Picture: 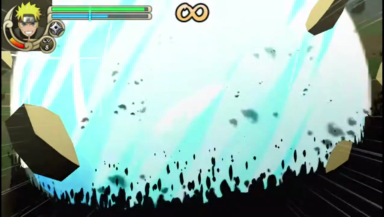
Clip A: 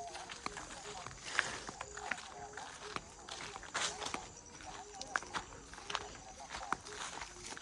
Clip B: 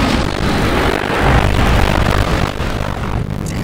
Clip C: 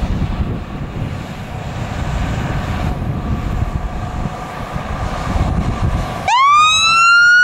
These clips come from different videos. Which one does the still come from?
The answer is B